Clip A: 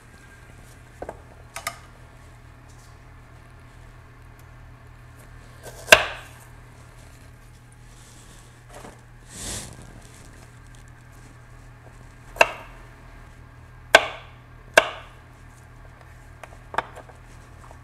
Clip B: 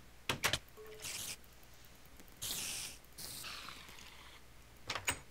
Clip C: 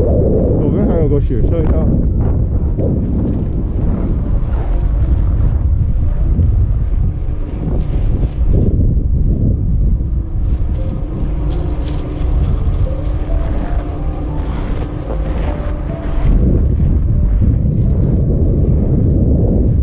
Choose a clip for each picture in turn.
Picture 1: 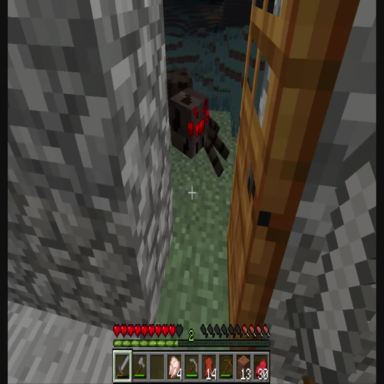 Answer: B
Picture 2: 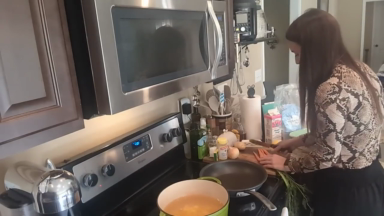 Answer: A